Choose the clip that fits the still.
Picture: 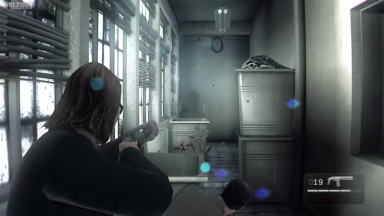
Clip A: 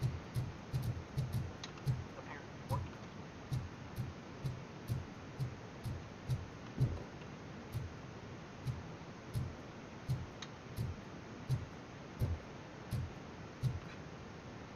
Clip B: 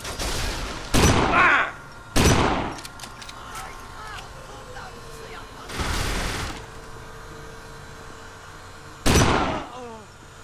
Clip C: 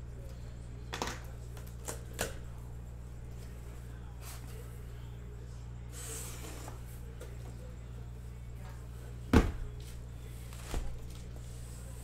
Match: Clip B